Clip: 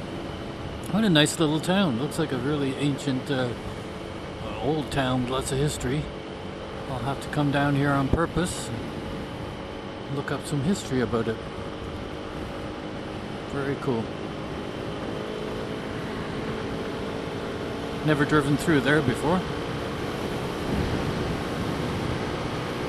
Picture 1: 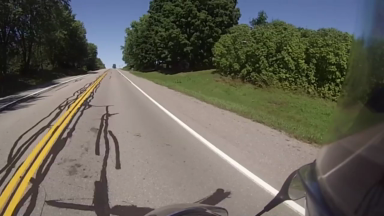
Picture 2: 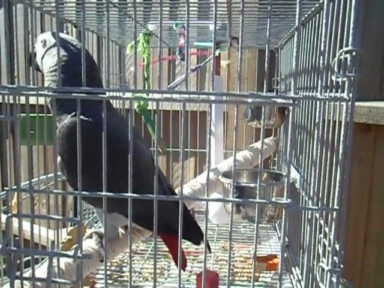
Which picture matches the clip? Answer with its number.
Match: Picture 1